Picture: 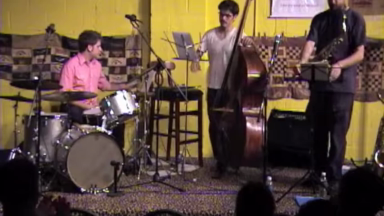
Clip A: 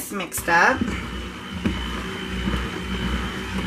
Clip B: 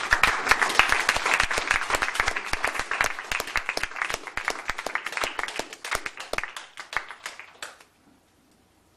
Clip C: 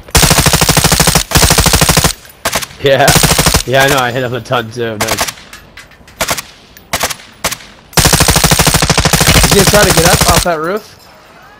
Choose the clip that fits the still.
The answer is B